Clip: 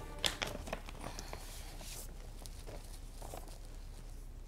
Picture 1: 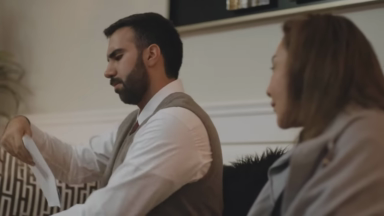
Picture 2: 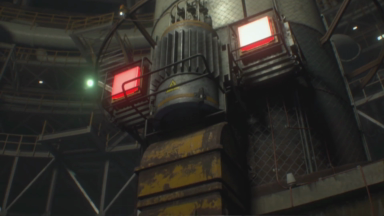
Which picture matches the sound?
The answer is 1